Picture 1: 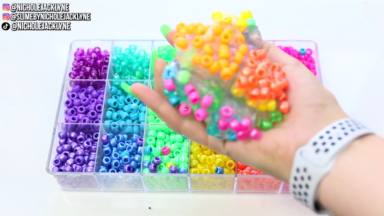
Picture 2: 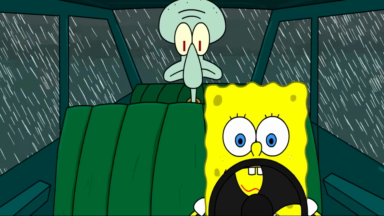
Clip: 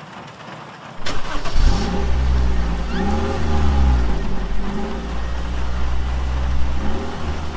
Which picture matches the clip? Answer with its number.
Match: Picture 2